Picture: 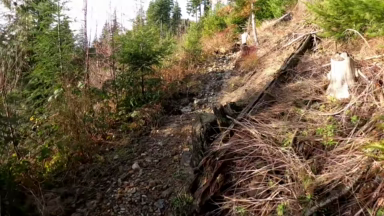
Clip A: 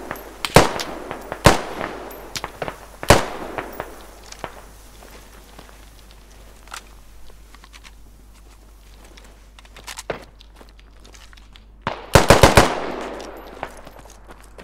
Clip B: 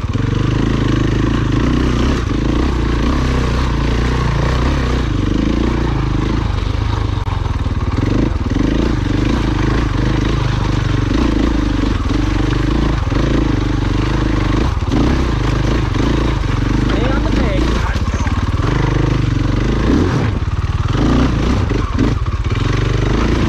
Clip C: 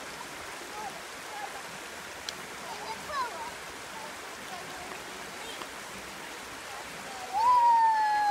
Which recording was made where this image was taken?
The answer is B